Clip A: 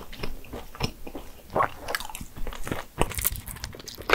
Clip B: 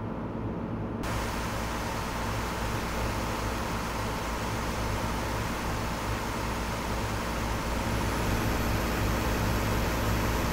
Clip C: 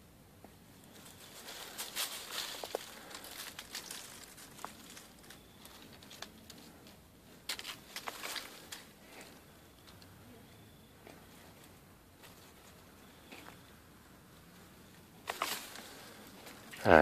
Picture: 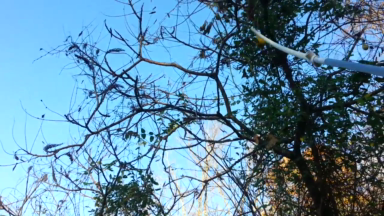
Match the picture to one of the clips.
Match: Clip C